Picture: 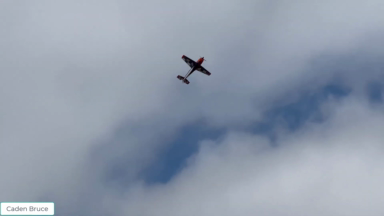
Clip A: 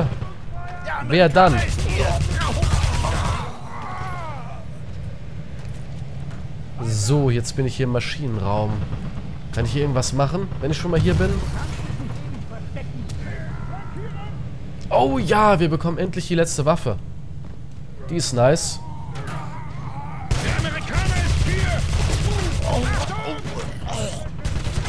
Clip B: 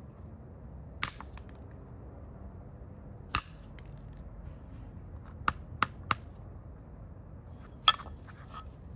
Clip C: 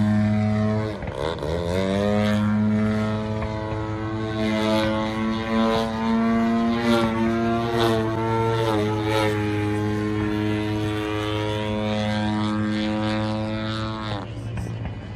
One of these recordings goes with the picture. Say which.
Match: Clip C